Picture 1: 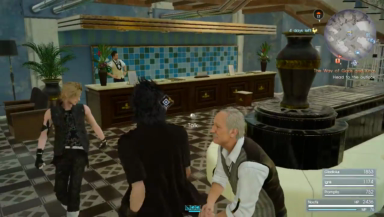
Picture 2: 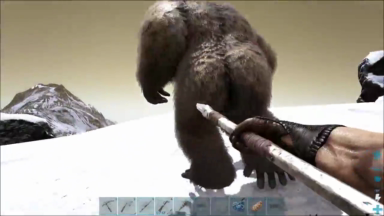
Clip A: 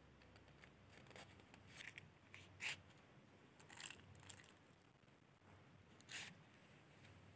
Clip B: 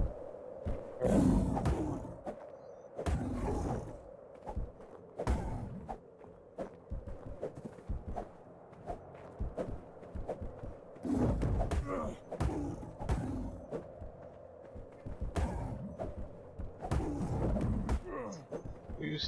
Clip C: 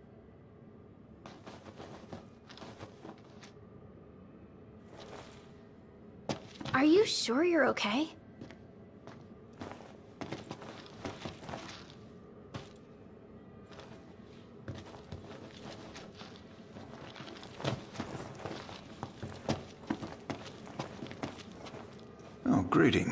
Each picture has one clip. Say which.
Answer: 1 C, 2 B